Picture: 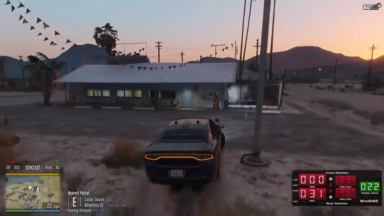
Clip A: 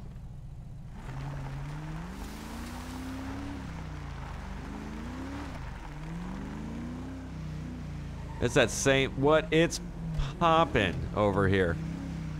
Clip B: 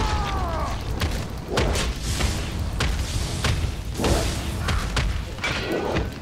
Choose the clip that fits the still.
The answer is A